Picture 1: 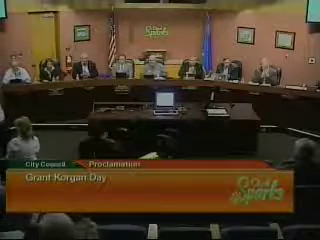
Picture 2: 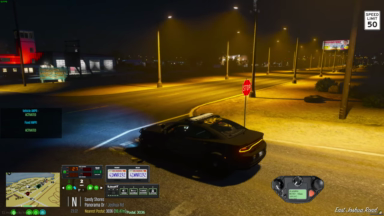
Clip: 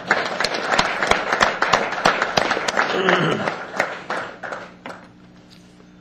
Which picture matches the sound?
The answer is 1